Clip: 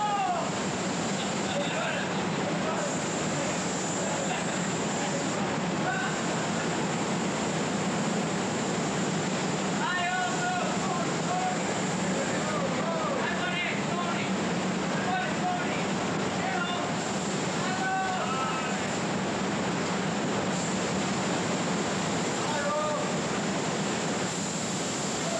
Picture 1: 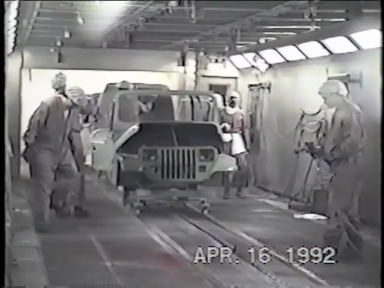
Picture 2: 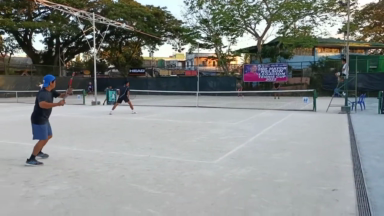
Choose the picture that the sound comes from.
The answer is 1